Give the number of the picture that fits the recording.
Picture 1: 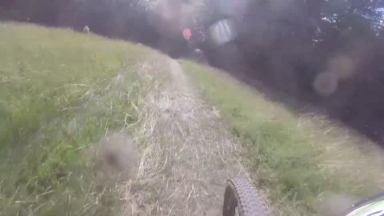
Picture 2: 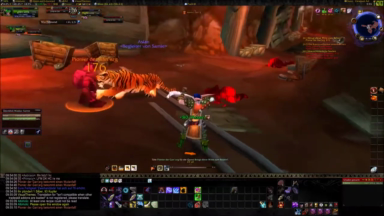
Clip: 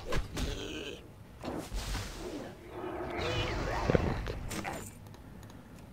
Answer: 2